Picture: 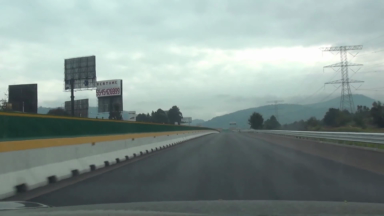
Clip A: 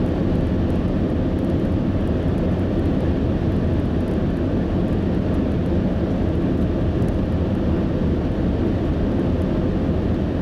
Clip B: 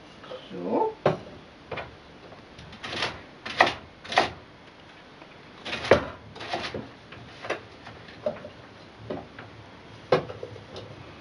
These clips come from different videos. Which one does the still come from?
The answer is A